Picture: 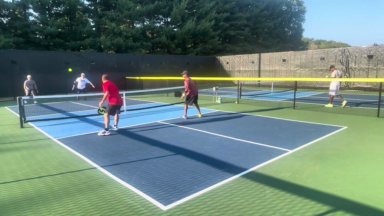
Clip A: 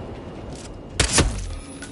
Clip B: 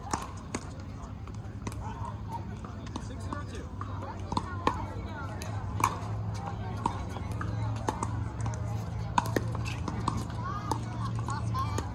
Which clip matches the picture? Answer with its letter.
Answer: B